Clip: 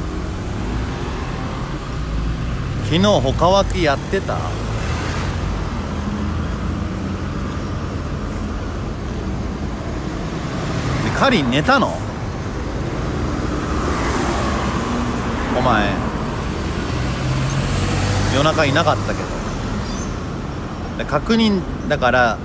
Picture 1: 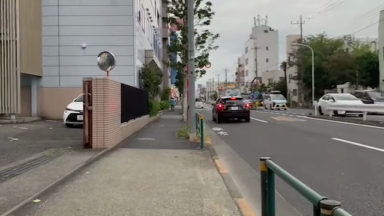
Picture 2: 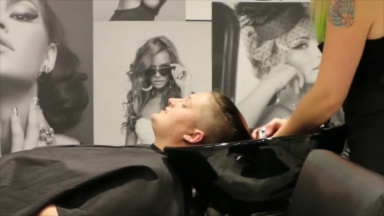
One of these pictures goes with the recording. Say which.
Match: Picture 1